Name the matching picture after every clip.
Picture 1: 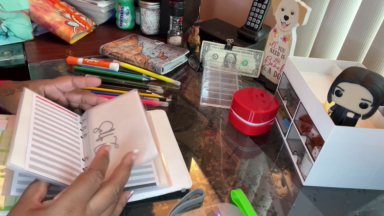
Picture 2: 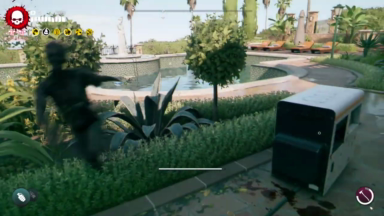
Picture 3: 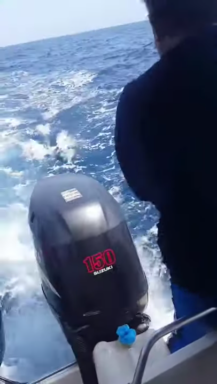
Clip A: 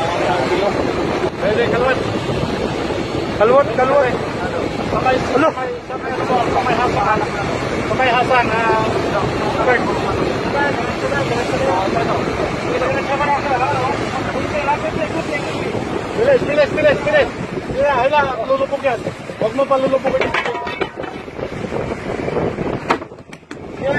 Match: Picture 3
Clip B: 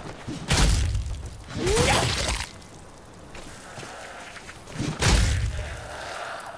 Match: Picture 2